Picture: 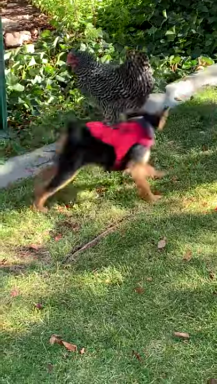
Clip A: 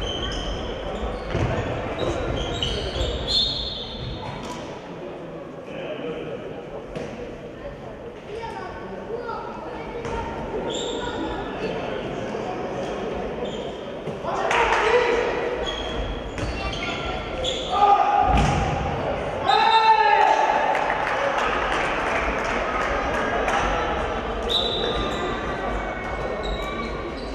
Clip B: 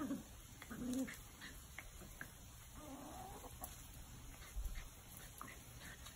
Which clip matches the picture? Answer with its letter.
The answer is B